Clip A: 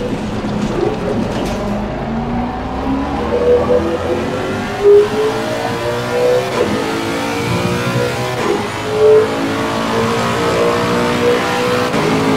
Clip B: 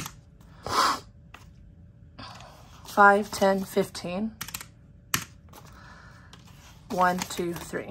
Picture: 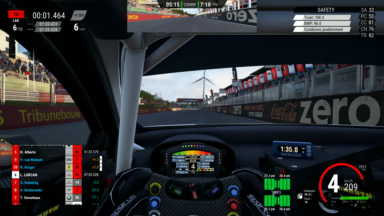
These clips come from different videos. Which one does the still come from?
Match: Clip A